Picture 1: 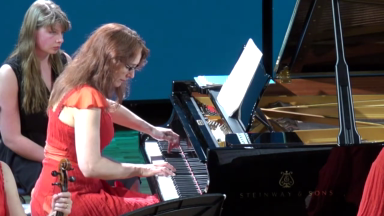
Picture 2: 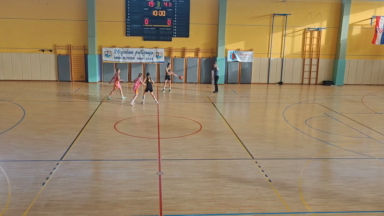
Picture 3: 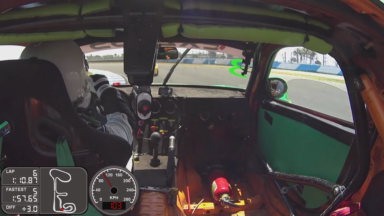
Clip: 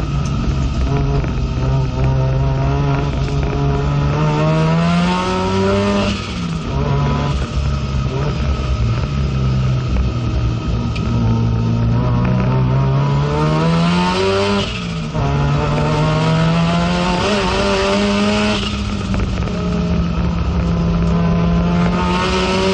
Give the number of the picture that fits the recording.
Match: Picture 3